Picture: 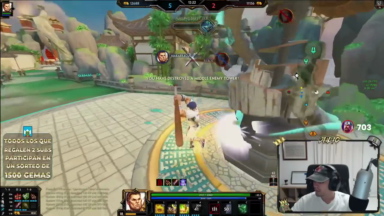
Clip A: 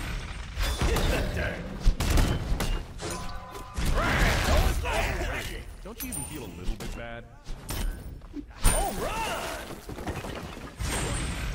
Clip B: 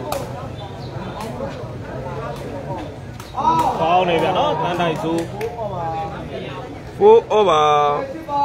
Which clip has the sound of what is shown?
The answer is A